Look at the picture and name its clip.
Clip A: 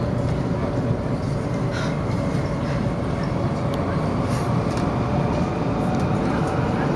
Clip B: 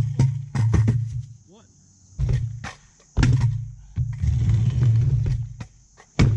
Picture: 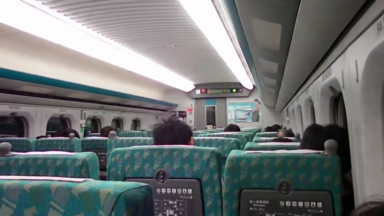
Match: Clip A